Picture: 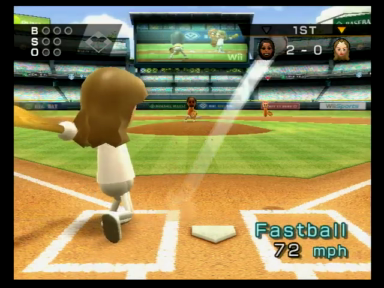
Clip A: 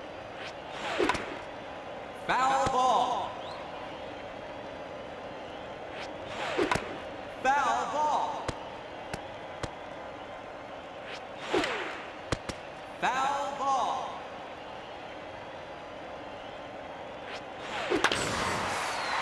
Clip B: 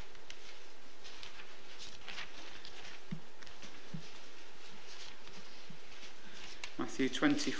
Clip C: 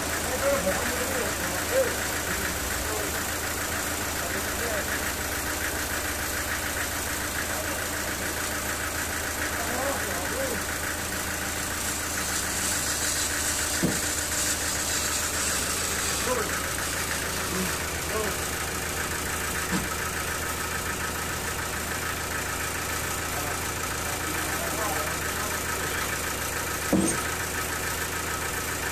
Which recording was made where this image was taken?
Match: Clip A